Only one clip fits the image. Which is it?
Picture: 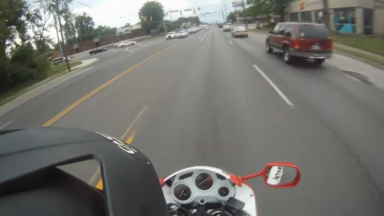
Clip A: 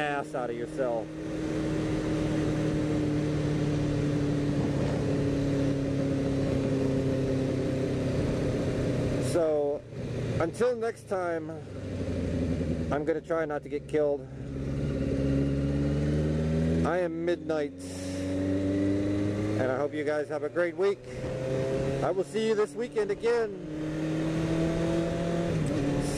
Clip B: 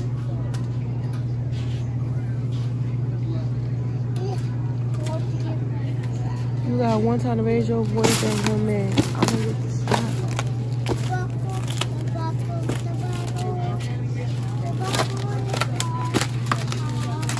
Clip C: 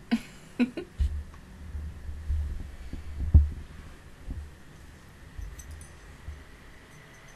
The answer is A